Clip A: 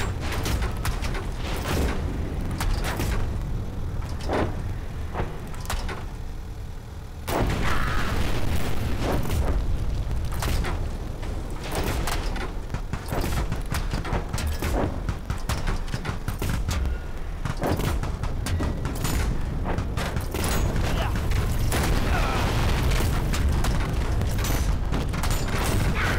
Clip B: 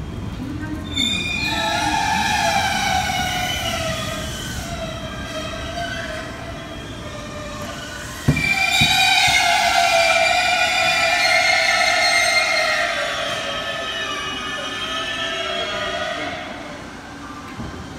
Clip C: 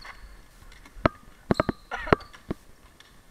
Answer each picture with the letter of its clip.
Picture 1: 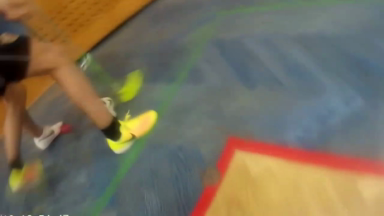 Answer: C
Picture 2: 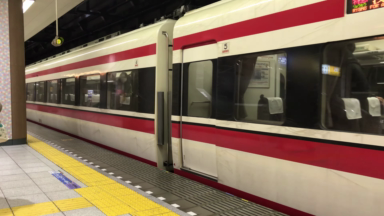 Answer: B